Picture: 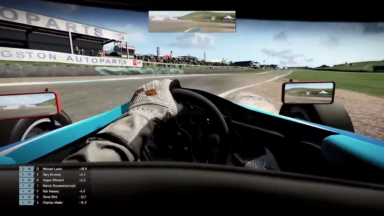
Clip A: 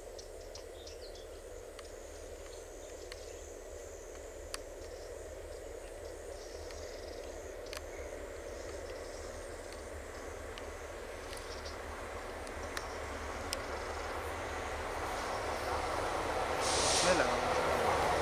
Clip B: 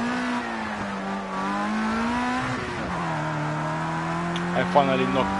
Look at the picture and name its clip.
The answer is B